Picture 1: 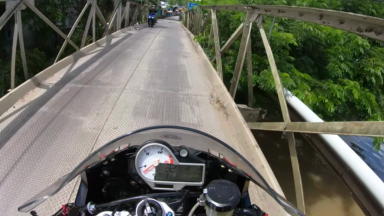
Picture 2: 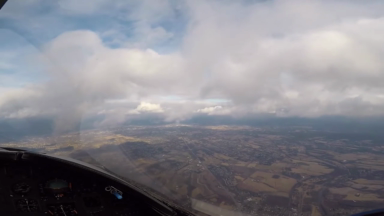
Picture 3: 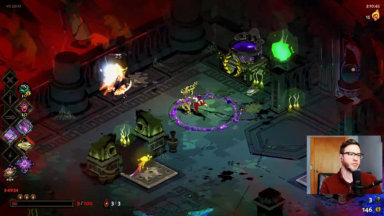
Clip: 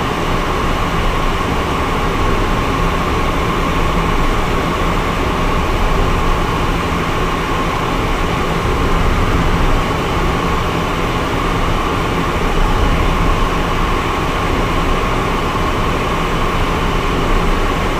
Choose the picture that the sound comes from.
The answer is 2